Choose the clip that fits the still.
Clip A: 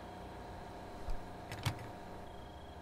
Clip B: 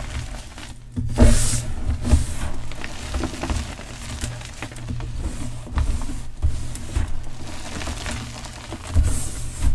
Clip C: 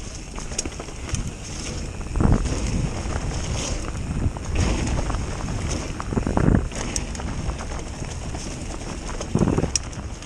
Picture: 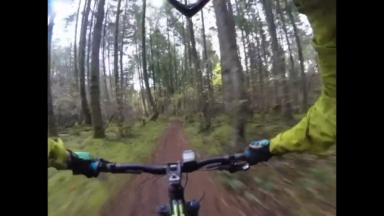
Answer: C